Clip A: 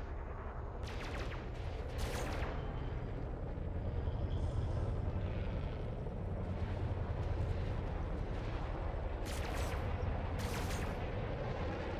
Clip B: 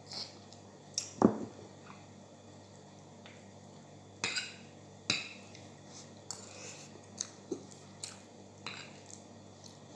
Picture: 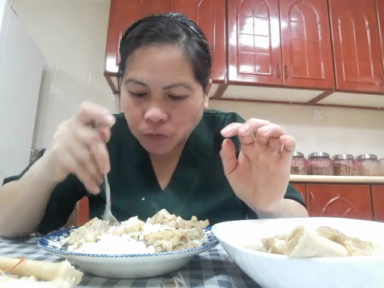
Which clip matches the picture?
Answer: B